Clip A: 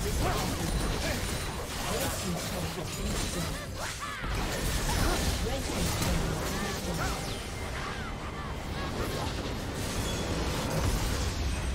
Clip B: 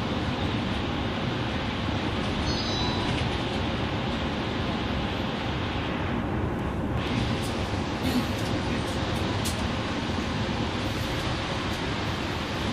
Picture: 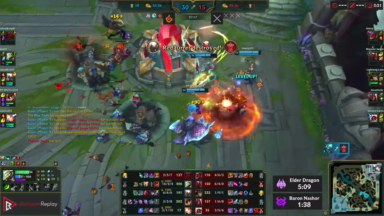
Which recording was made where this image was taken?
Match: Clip A